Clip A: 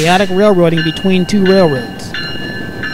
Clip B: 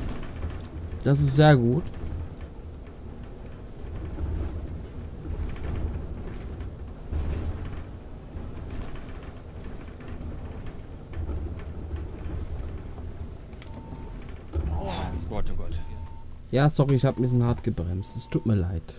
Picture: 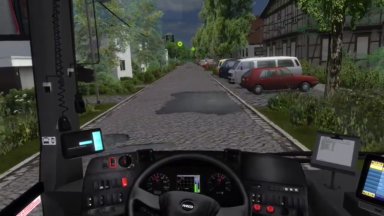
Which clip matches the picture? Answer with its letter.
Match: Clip B